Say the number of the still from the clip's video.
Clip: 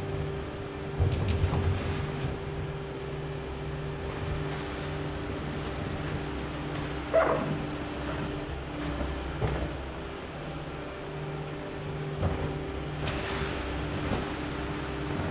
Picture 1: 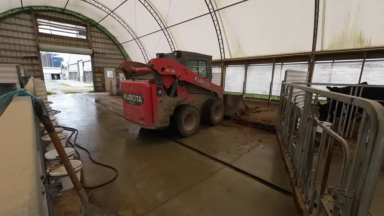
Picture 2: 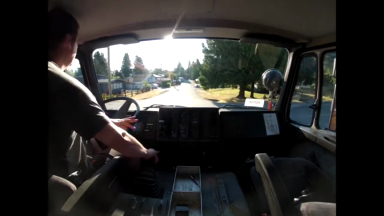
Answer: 1